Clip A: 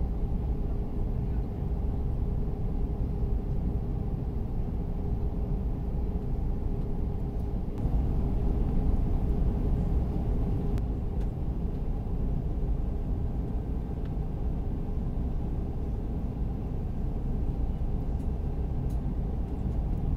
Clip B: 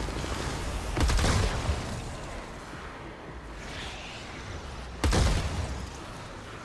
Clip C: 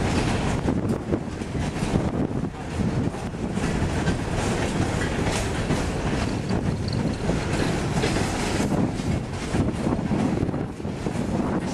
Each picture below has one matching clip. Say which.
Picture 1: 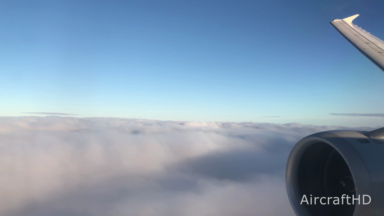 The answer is A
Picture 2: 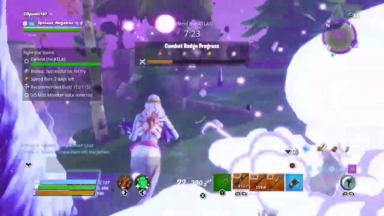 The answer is B